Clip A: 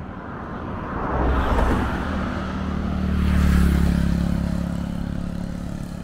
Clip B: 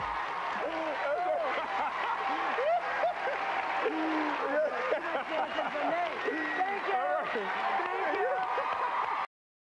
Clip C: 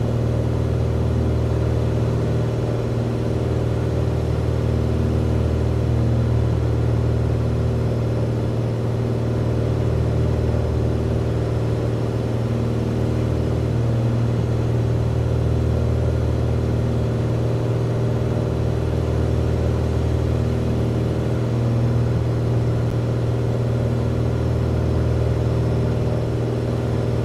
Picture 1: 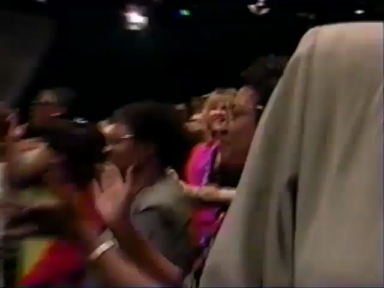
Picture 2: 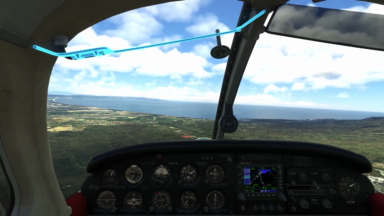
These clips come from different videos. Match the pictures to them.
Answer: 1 B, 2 C